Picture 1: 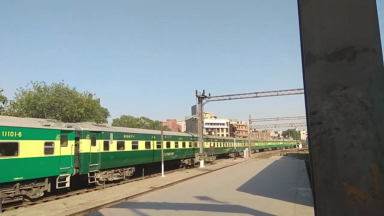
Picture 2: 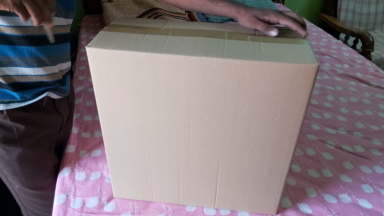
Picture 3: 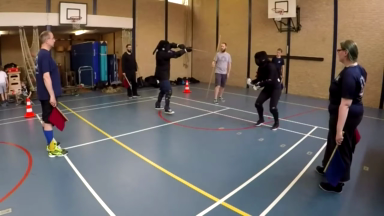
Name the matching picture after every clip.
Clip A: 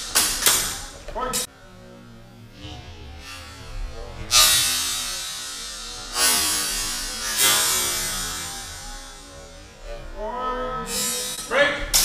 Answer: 3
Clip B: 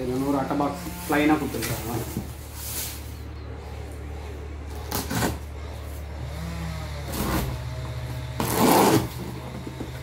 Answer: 2